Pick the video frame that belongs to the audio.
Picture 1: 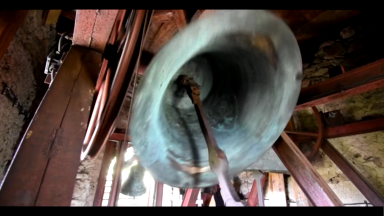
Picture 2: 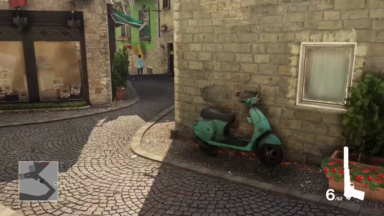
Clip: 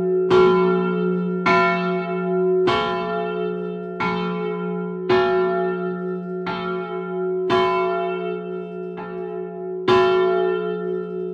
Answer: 1